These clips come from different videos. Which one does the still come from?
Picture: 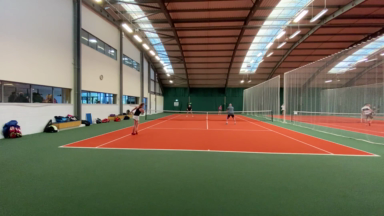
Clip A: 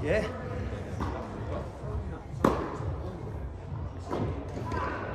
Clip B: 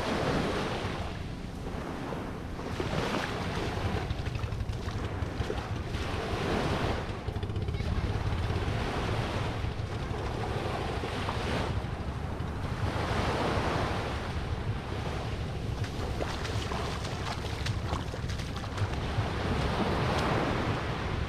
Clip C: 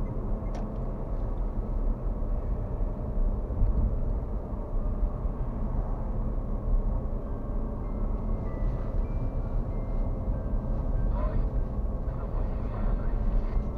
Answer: A